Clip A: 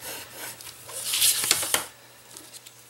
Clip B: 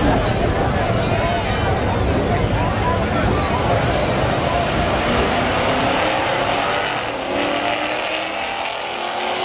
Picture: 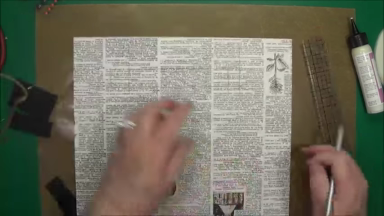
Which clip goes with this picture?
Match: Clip A